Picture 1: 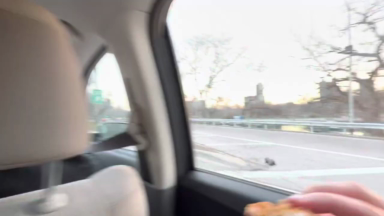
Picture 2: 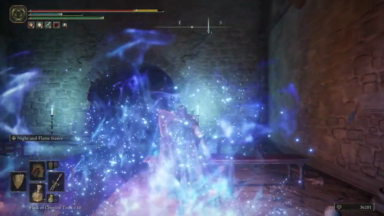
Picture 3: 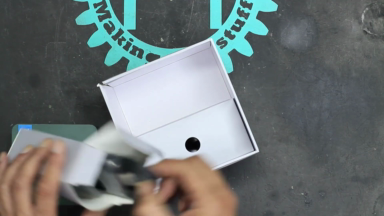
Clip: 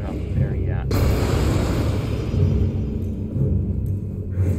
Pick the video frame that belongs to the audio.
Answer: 2